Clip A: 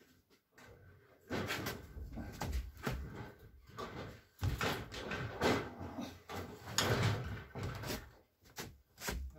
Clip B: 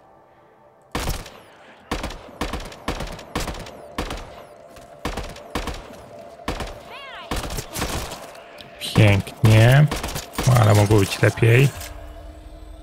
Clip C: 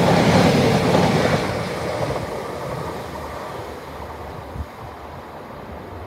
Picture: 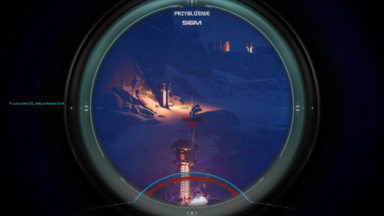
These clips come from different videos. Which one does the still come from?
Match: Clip B